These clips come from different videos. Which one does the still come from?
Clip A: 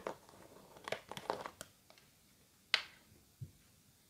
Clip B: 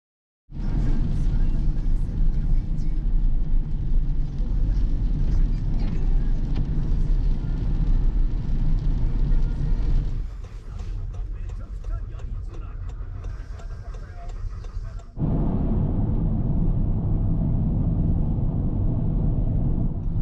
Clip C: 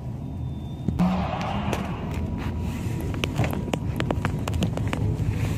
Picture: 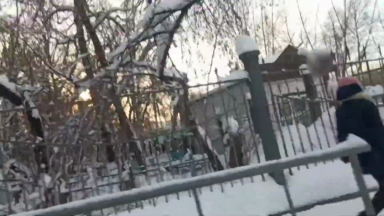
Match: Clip C